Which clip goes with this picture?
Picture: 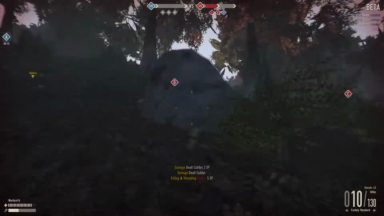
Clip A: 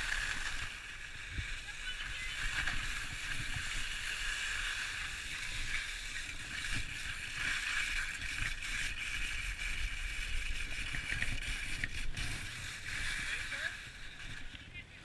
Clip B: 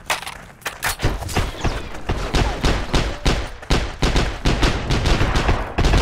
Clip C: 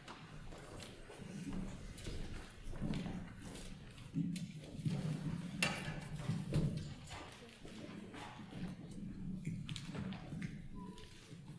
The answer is B